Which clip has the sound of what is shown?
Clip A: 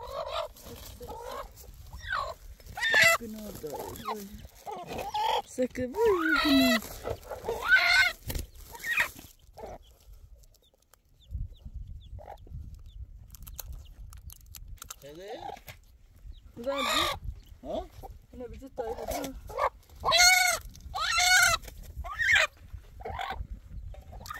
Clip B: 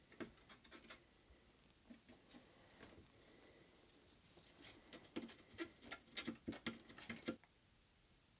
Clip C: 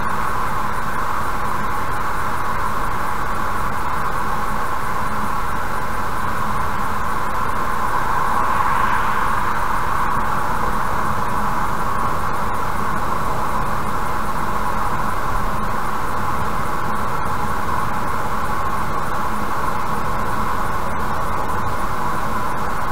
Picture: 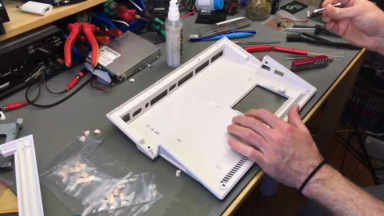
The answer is B